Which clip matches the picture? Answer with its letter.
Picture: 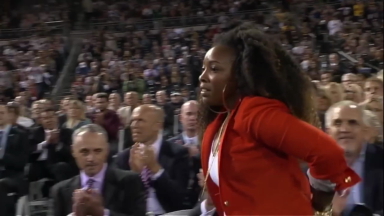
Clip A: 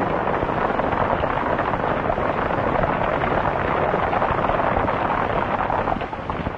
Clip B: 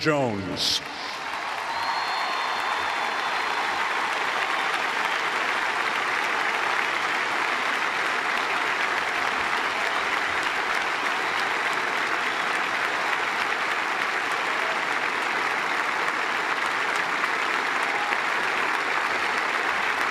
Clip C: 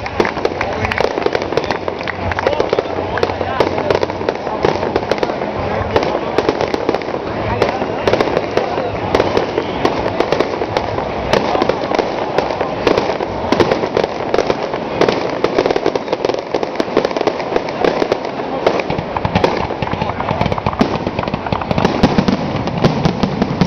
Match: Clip B